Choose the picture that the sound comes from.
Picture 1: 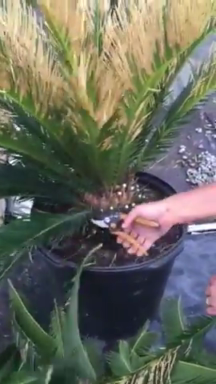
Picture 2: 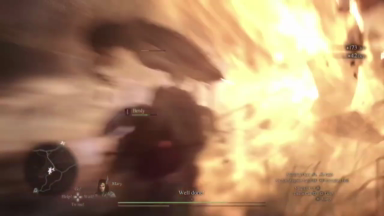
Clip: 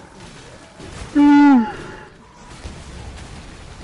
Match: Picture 2